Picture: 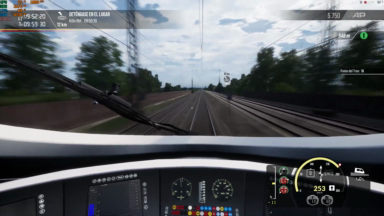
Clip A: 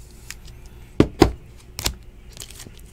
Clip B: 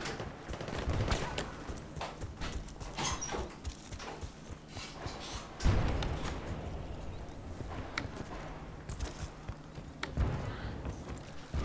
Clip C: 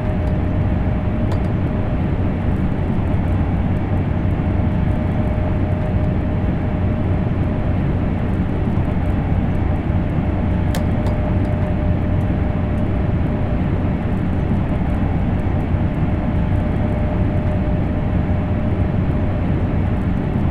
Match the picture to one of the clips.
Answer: C